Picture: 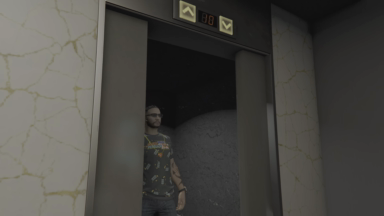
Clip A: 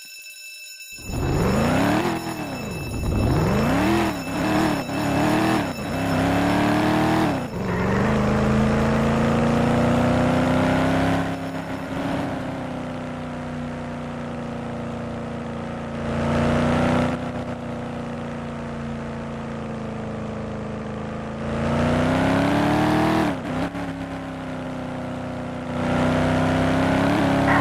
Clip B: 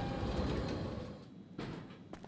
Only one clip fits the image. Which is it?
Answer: B